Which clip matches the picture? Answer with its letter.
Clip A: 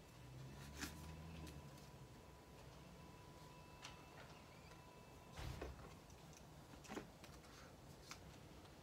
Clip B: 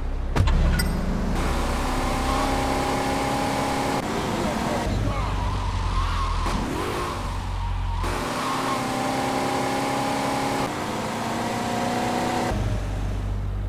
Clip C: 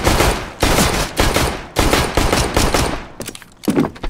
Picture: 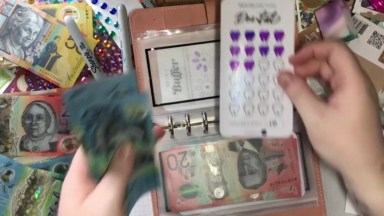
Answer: A